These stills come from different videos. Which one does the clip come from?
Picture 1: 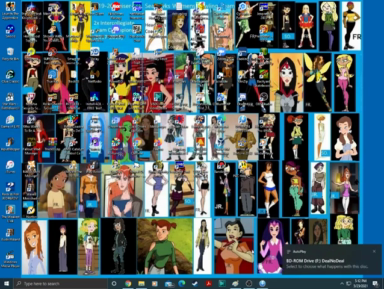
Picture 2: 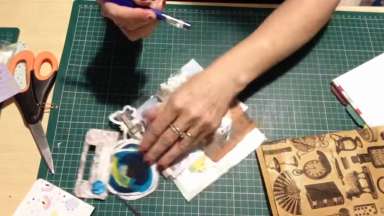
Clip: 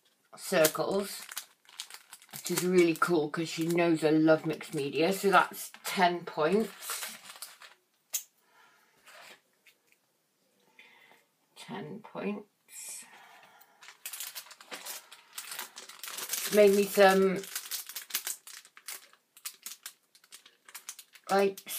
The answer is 2